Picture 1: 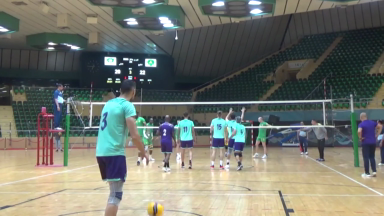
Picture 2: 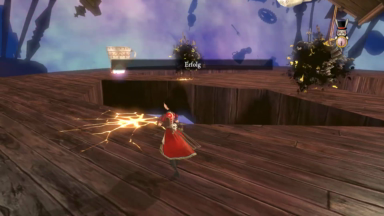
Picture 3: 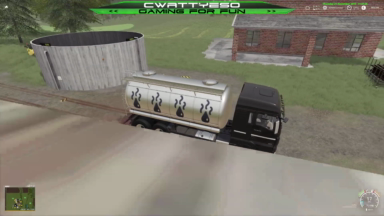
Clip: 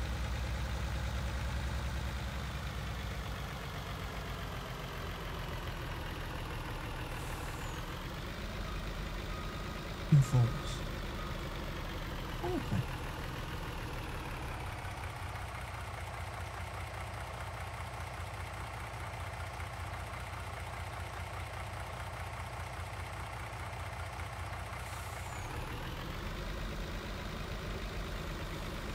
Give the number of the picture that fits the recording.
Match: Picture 3